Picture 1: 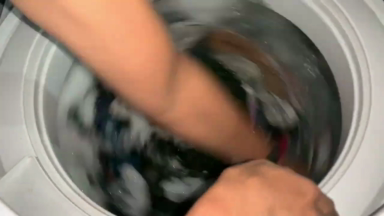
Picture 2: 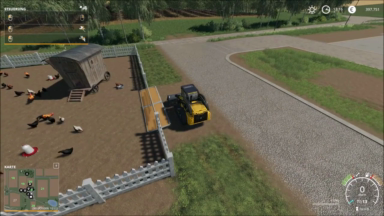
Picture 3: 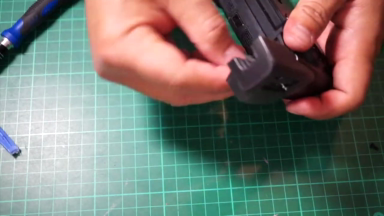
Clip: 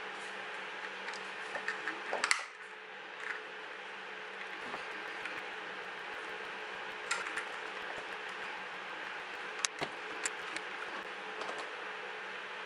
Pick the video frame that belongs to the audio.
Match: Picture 3